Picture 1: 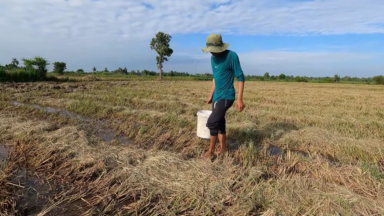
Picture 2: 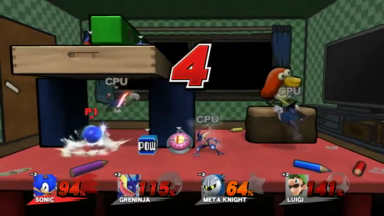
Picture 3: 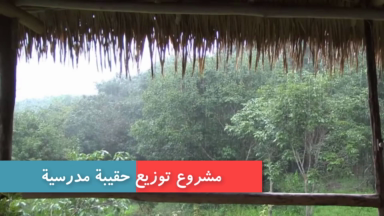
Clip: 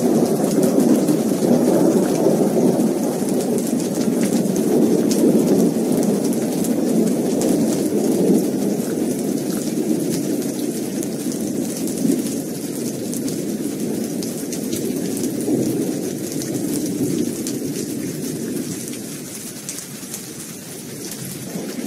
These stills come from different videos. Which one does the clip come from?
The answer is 3